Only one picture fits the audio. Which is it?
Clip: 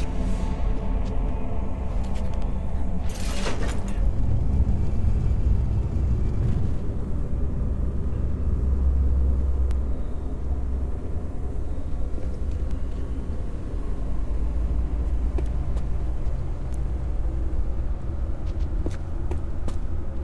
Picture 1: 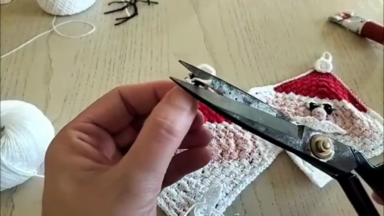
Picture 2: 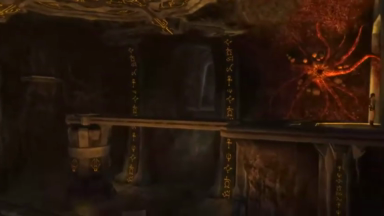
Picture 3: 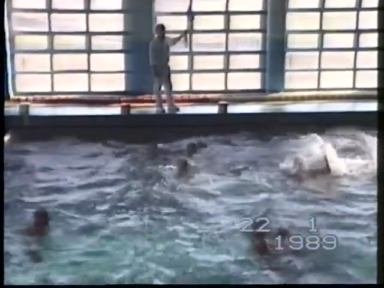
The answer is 2